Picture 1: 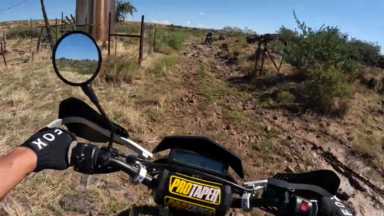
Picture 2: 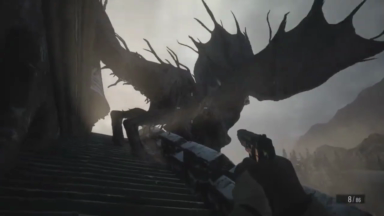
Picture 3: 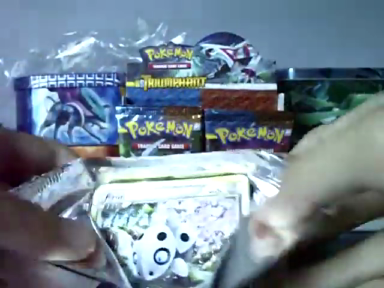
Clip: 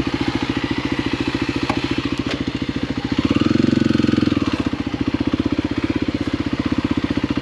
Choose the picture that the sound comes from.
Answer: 1